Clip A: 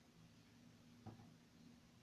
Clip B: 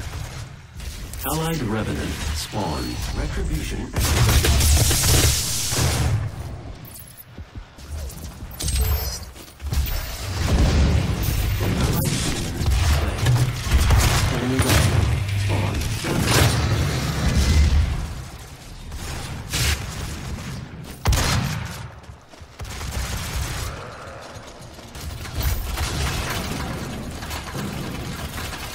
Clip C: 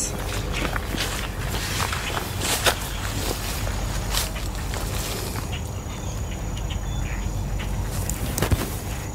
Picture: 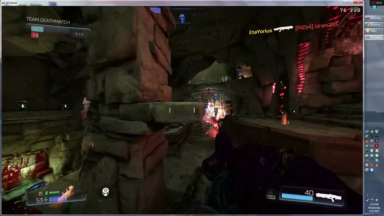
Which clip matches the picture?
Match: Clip B